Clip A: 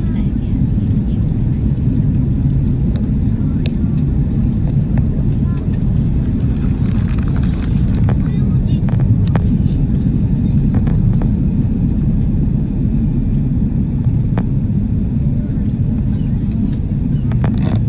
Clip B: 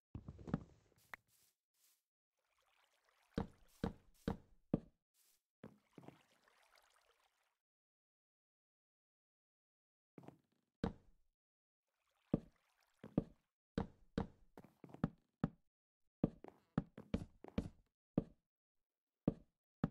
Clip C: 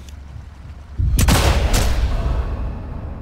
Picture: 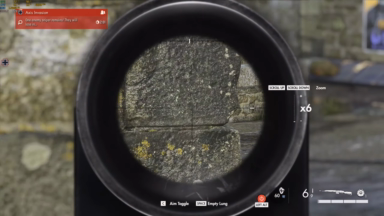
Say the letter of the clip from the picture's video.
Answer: C